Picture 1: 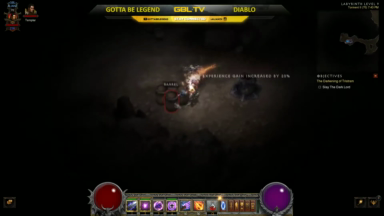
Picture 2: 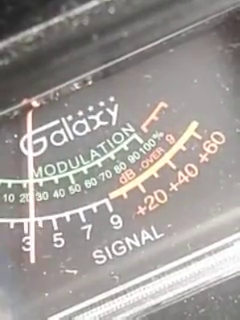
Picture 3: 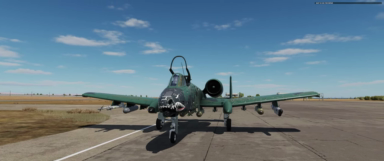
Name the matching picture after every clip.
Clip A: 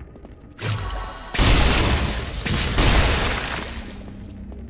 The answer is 1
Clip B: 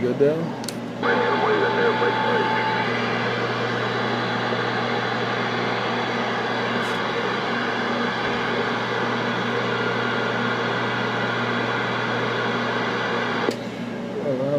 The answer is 2